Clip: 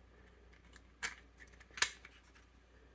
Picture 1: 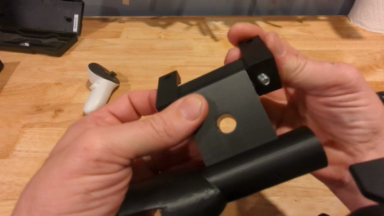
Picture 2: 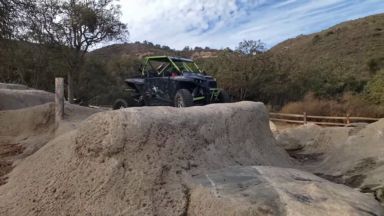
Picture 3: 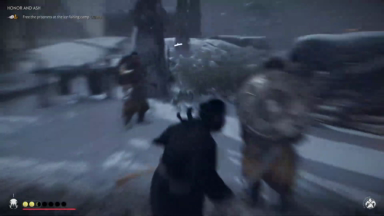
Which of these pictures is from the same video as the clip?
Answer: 1